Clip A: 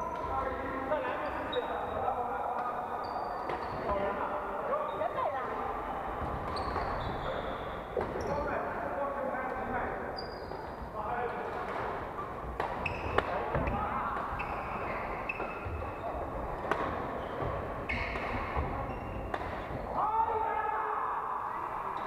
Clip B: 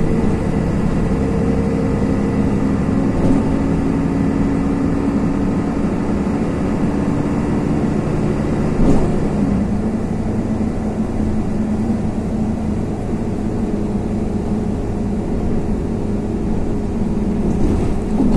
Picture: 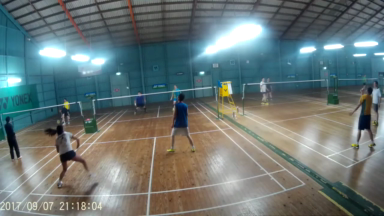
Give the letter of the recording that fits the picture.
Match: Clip A